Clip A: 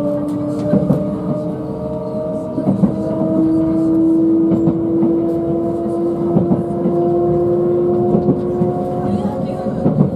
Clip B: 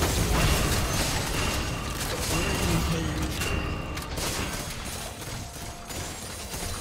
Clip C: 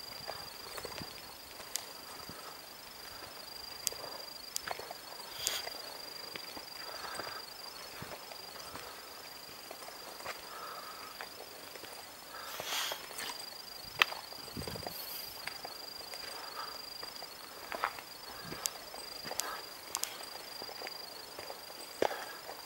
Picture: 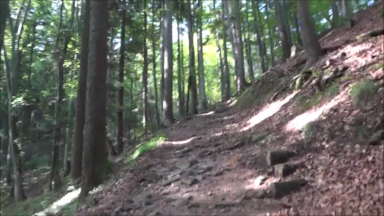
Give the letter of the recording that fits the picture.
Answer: C